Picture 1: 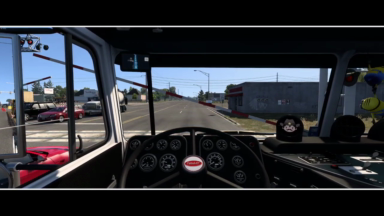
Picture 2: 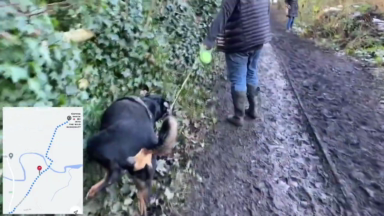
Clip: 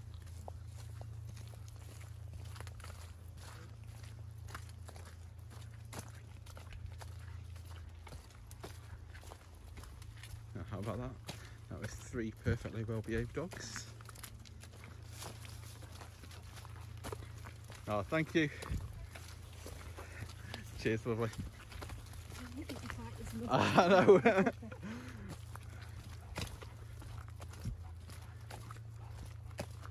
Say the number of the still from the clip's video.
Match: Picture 2